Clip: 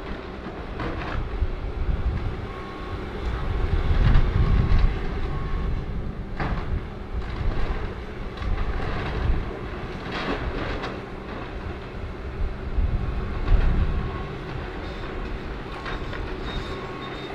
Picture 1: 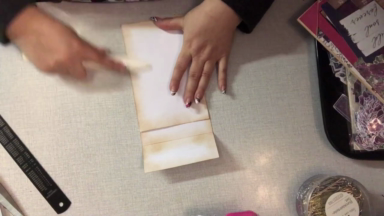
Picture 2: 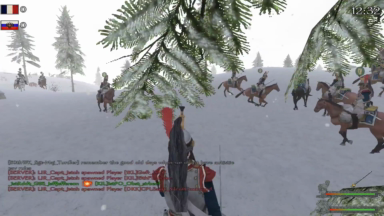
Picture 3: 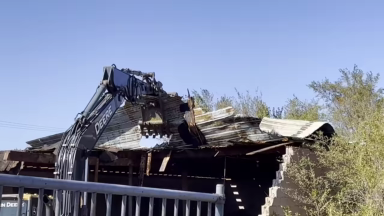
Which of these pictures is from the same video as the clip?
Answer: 3